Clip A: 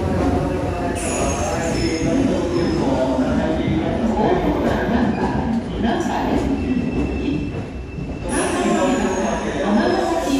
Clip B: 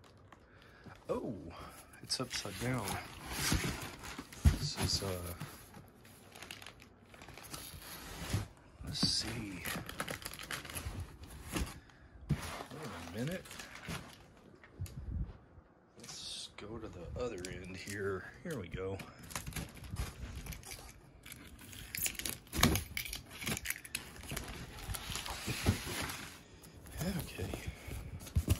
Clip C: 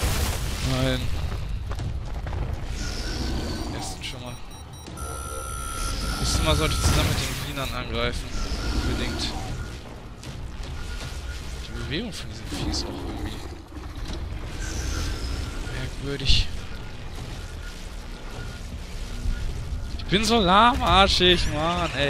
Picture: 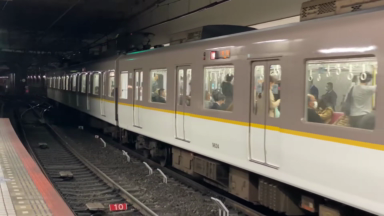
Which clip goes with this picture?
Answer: A